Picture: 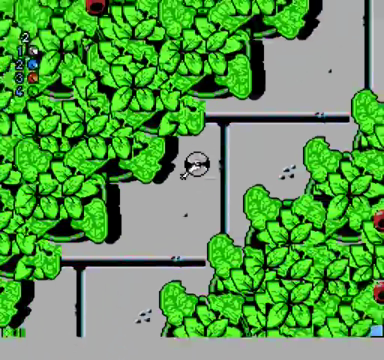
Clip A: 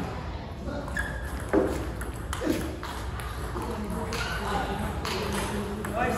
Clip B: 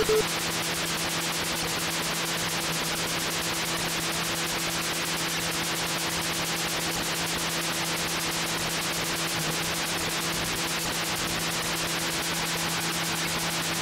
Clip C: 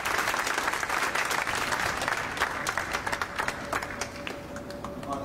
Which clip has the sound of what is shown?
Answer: B